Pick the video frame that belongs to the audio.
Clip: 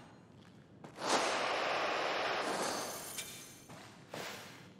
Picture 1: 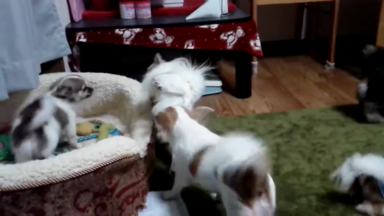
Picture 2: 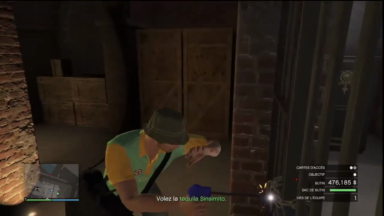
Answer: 2